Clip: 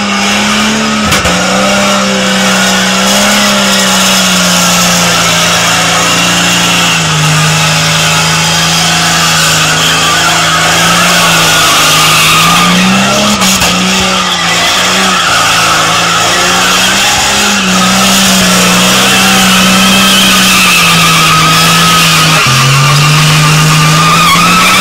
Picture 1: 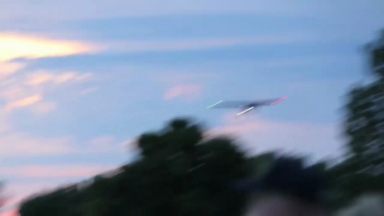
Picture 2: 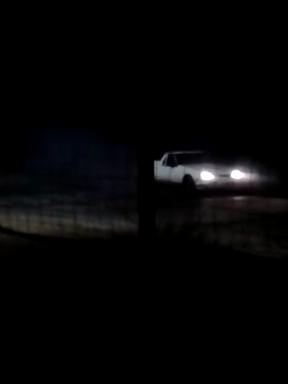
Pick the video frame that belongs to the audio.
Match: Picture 2